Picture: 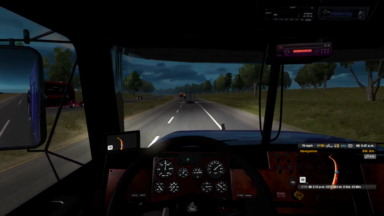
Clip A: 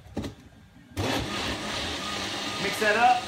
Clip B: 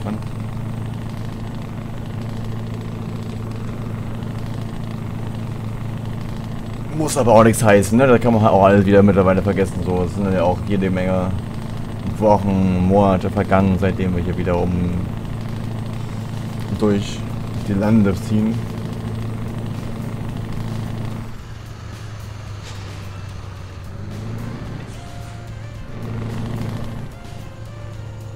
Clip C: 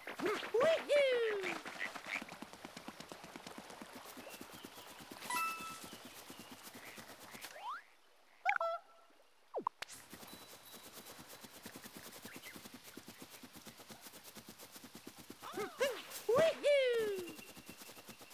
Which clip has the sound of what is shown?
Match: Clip B